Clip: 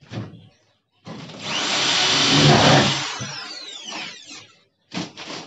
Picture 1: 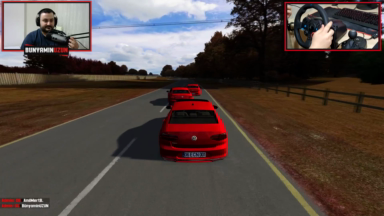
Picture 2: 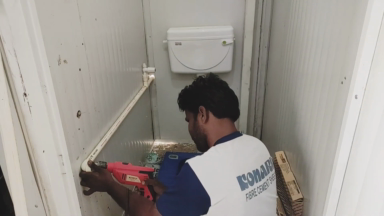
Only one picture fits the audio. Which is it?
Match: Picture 2